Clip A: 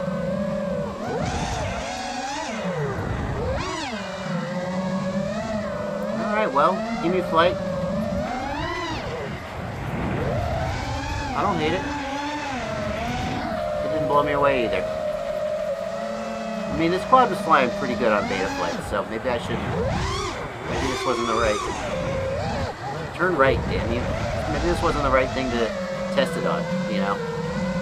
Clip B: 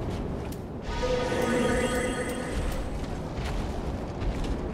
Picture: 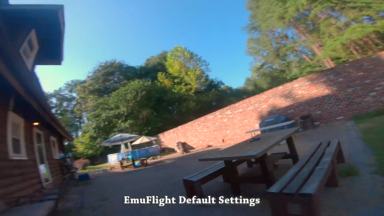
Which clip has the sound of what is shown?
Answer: A